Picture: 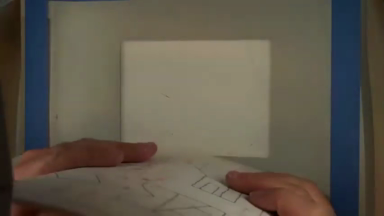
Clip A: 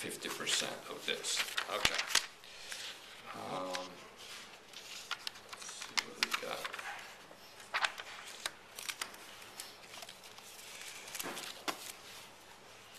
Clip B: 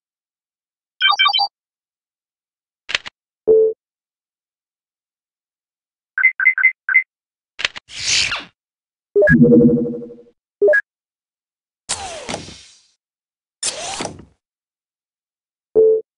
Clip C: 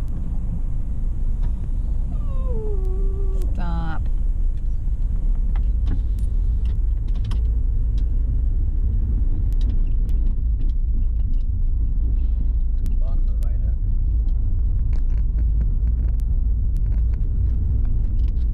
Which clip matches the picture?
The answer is A